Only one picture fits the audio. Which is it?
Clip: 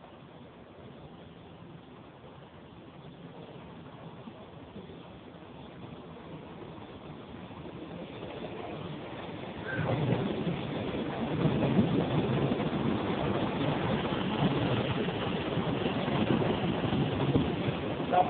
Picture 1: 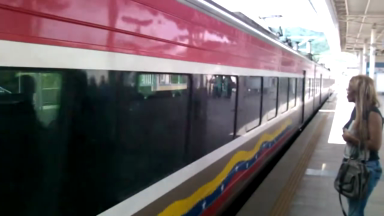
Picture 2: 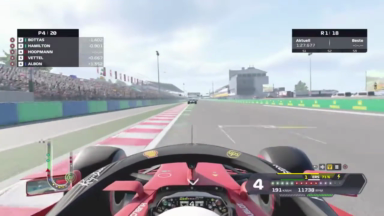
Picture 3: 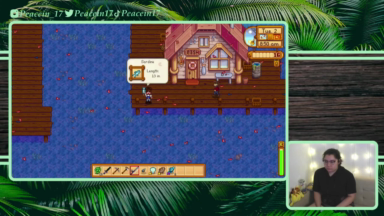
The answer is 1